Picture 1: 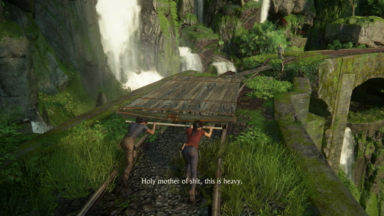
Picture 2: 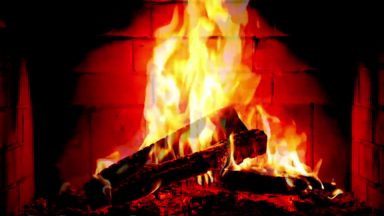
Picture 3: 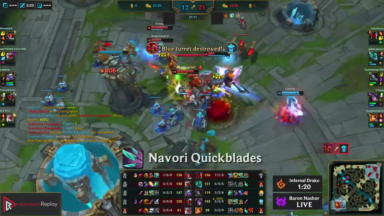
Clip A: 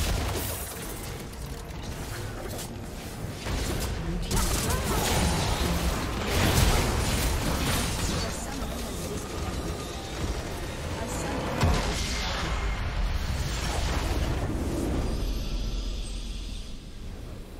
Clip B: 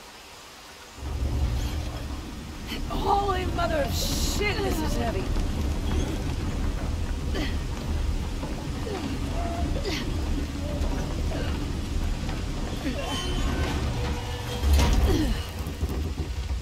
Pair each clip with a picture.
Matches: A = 3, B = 1